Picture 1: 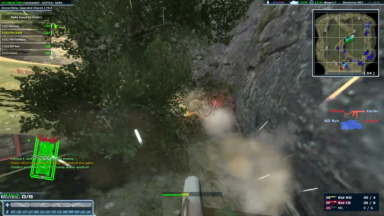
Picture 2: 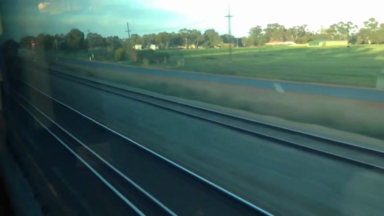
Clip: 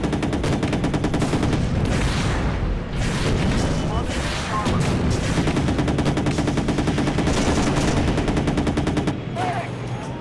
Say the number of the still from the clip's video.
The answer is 1